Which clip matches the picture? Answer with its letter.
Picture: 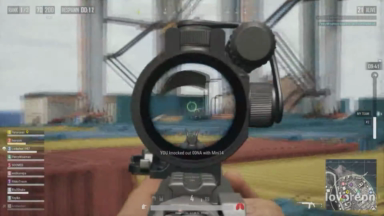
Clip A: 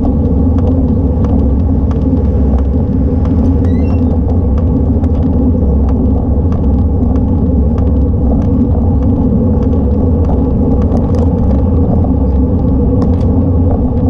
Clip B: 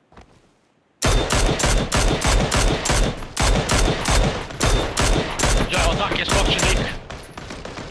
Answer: B